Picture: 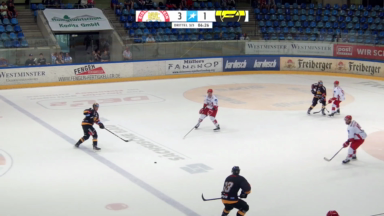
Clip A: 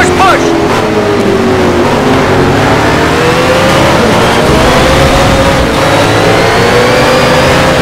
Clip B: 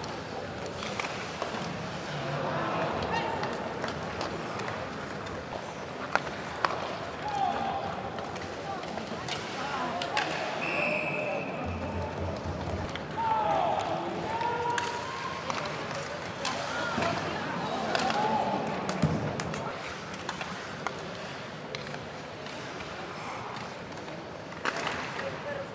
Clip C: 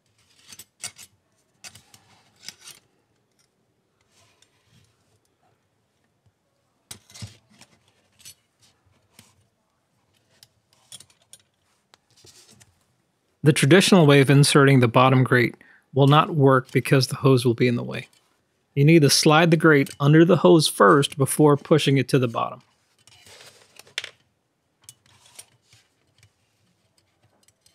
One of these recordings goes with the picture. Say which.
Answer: B